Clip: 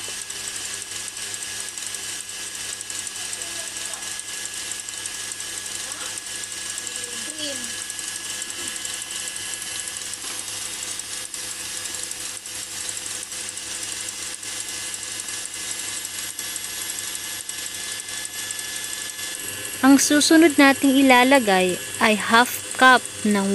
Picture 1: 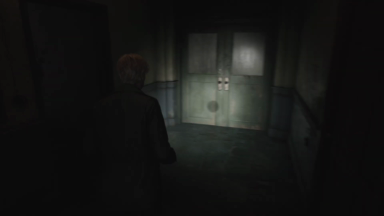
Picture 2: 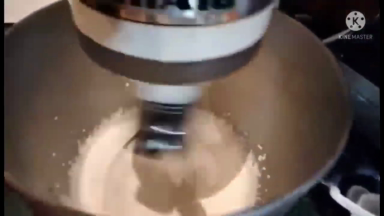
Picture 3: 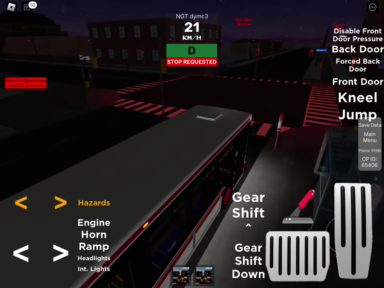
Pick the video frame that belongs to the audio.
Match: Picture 2